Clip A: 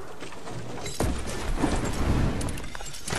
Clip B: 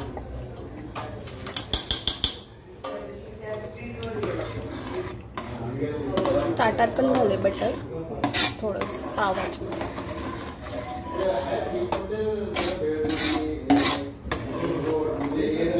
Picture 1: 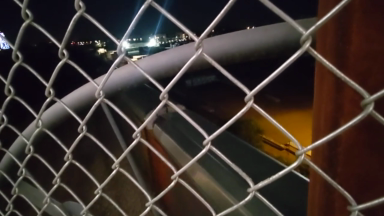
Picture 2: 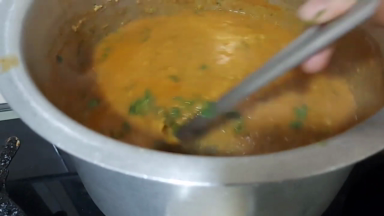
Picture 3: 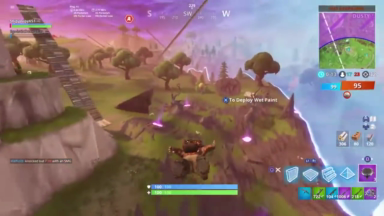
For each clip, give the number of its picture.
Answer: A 3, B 2